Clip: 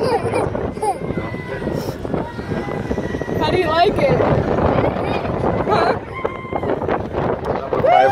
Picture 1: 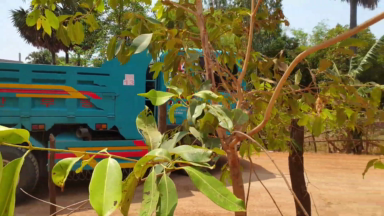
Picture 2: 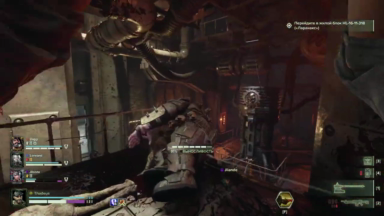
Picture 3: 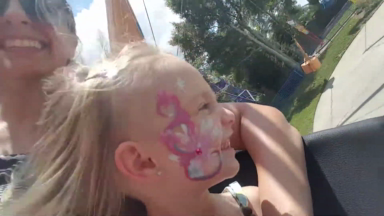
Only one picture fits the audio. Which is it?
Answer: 3